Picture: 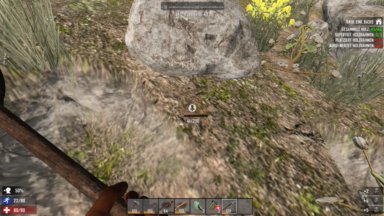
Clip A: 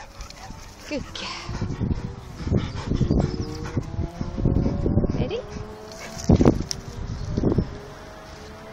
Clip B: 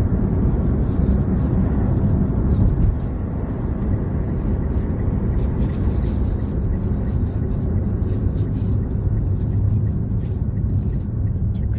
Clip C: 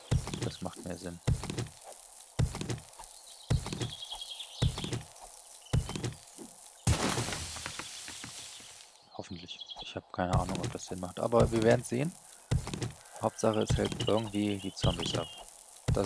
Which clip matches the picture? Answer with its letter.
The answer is C